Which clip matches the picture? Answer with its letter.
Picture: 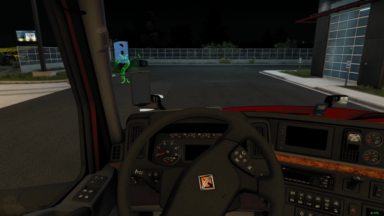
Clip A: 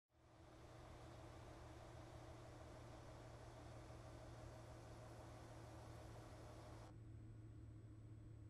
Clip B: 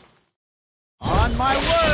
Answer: A